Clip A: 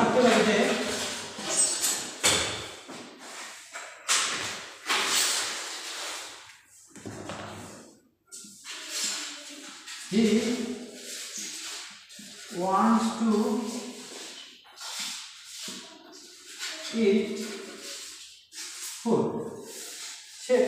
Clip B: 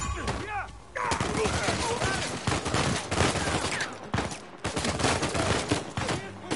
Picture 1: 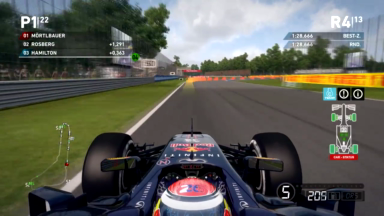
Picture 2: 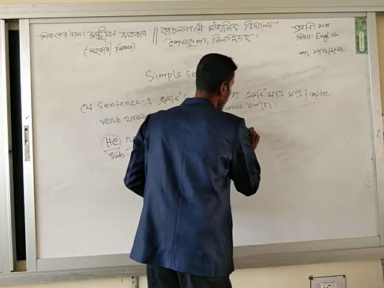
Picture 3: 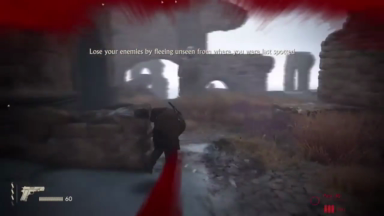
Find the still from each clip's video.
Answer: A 2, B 3